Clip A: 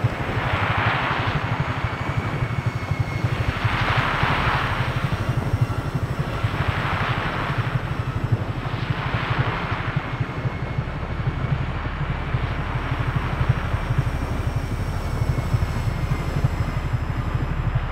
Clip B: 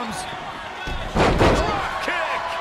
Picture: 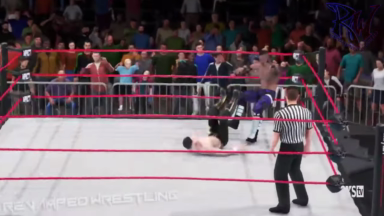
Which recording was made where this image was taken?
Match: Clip B